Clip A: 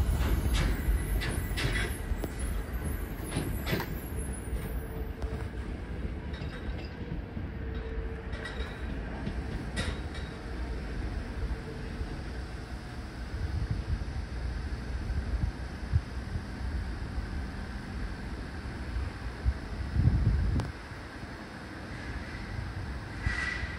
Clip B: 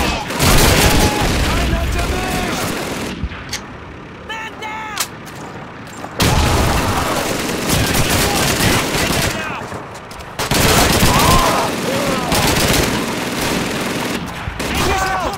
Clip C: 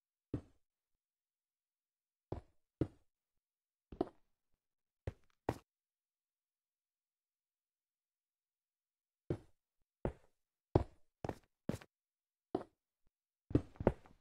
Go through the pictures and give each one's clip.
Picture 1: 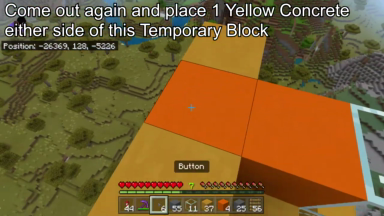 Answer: C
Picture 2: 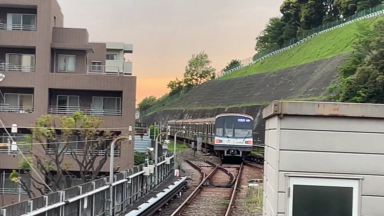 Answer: A